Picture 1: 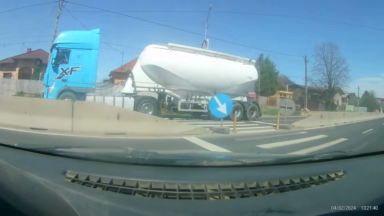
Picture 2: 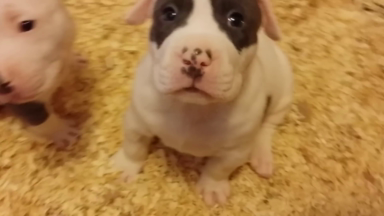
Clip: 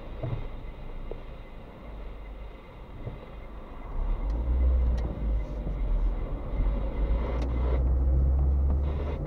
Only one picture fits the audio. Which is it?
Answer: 1